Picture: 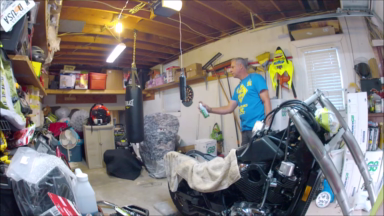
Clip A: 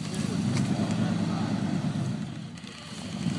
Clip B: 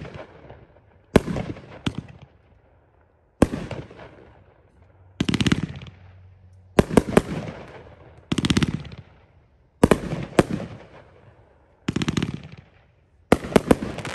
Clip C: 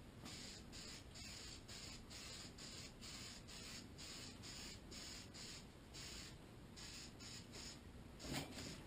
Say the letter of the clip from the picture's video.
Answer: C